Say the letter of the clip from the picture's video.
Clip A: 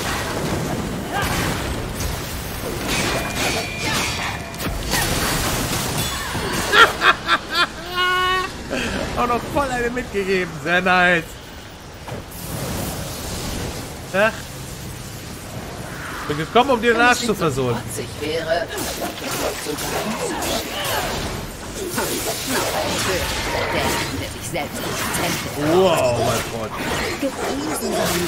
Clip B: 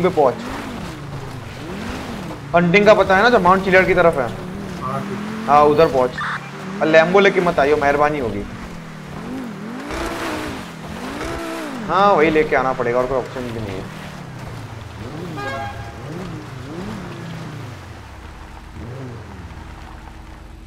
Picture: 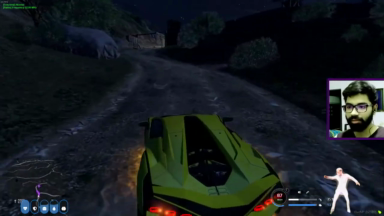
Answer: B